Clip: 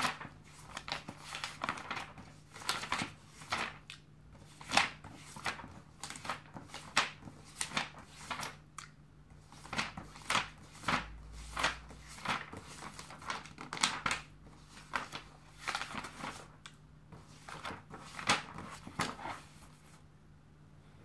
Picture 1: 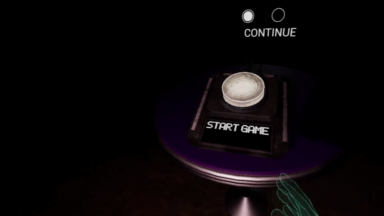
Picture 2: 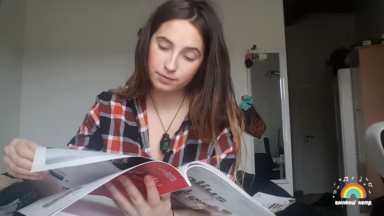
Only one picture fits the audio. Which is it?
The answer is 2